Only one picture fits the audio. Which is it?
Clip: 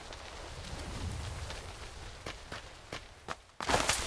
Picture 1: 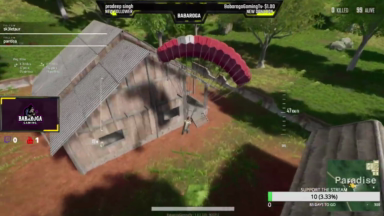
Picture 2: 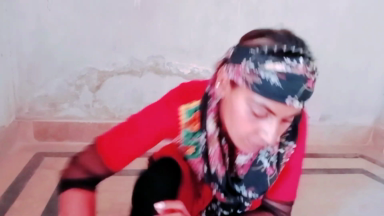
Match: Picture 1